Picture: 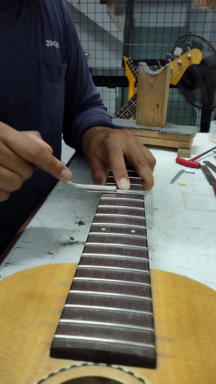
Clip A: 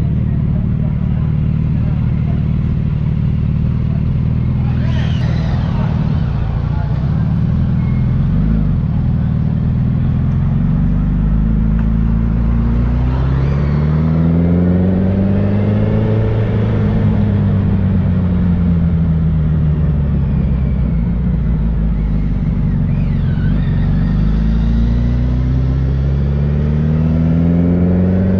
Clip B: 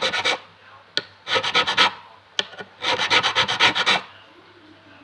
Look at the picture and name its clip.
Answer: B